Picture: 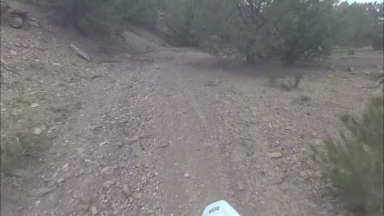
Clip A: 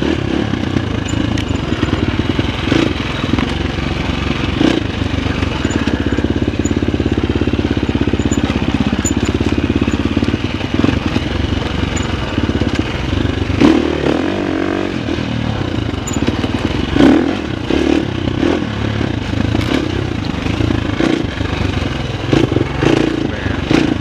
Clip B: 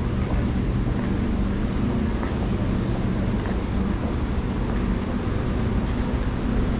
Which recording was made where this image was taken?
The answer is A